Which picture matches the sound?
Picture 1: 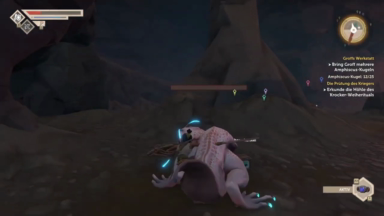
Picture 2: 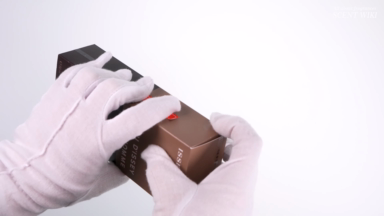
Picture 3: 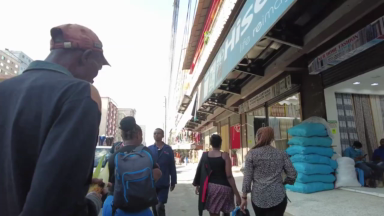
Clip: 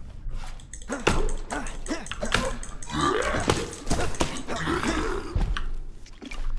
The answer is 1